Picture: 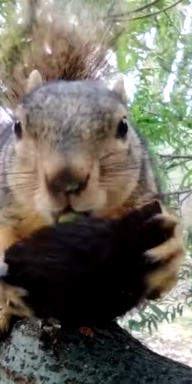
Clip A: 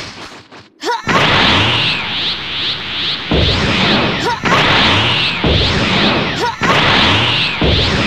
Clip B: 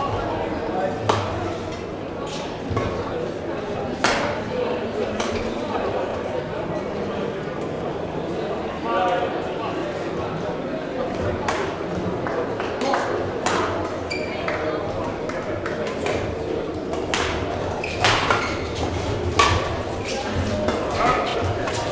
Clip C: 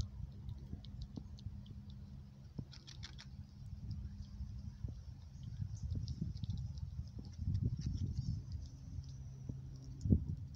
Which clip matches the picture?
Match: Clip C